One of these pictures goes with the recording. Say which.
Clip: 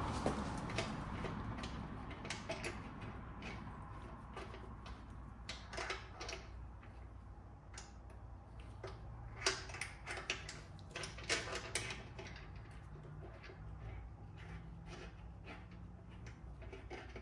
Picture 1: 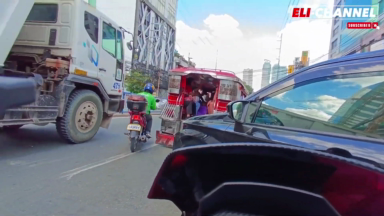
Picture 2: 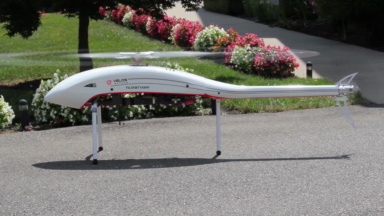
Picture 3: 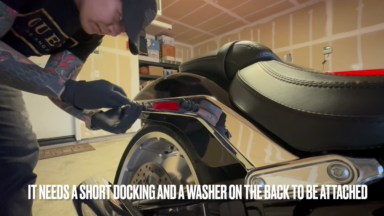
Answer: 3